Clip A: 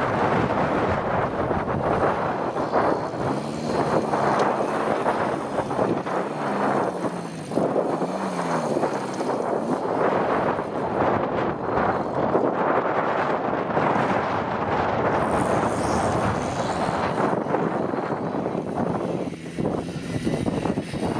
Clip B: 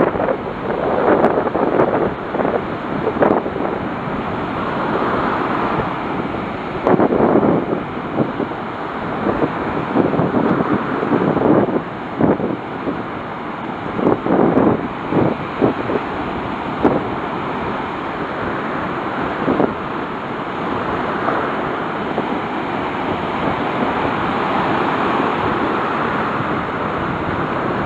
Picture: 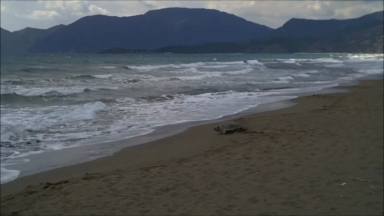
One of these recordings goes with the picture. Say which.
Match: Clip B